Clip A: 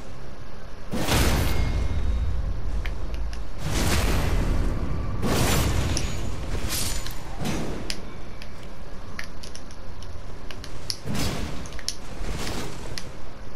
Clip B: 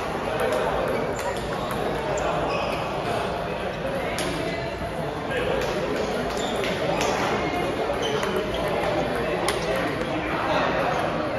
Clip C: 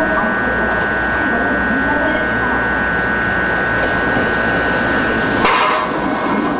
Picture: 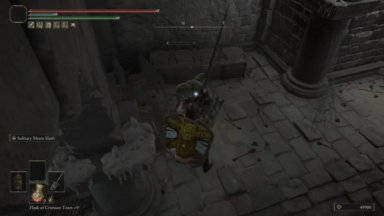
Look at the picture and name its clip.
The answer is A